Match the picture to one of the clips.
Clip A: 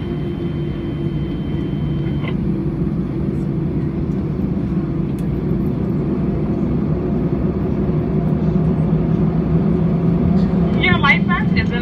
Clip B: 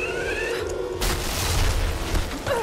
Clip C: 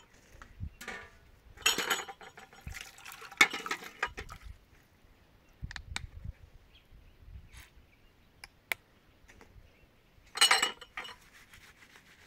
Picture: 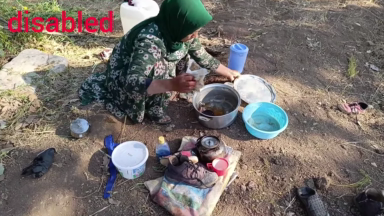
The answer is C